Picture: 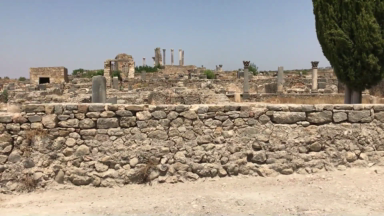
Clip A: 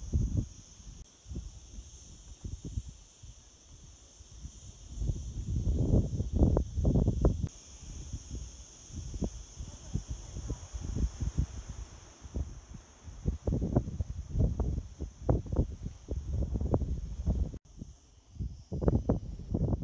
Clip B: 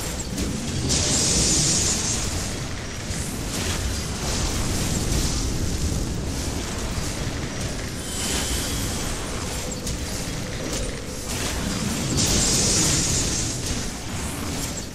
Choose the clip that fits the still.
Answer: A